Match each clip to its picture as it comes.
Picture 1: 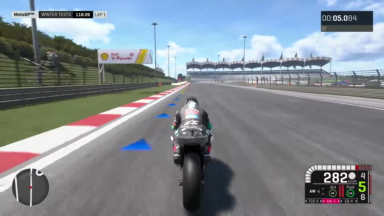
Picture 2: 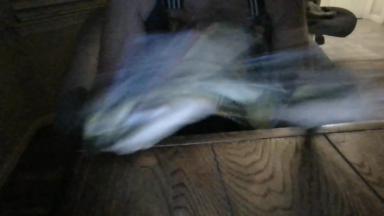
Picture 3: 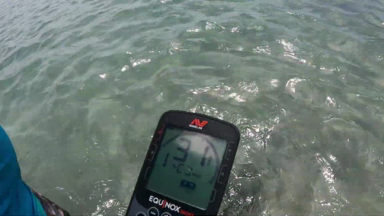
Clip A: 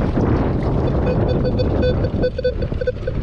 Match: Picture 3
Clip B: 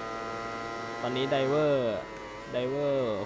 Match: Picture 1